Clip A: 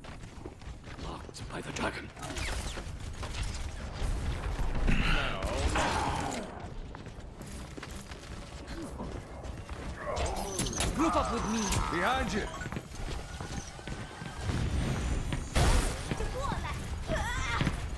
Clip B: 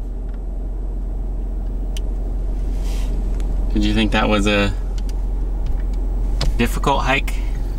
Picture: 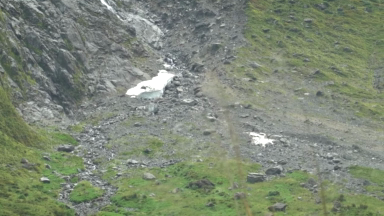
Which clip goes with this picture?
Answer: B